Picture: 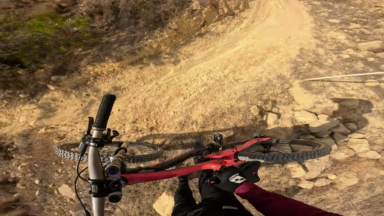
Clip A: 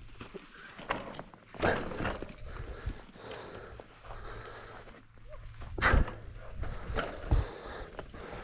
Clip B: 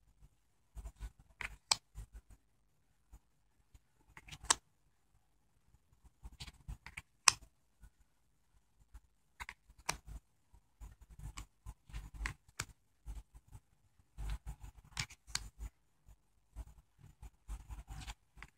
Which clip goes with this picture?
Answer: A